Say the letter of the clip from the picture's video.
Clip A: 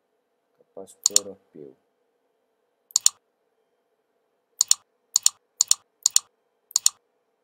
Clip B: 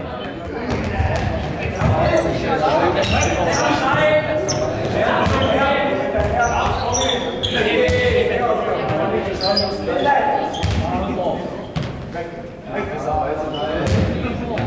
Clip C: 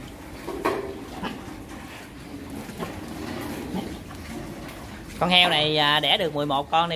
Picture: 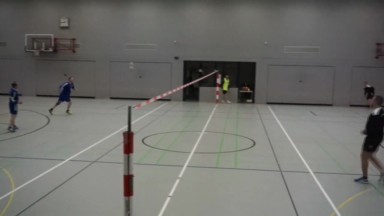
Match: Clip B